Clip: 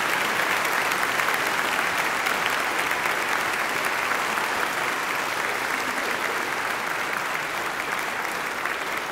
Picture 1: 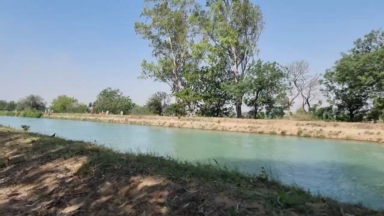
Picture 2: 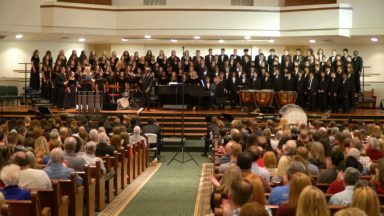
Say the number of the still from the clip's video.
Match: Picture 2